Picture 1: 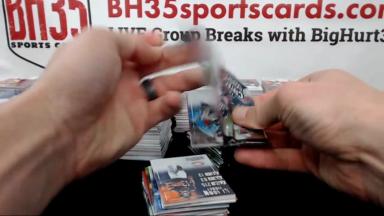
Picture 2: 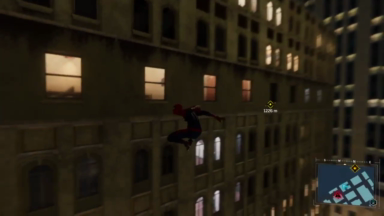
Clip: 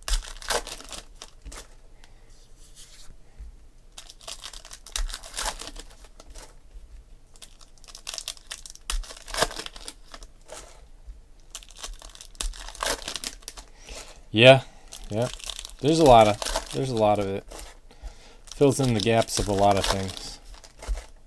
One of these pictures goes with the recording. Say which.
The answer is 1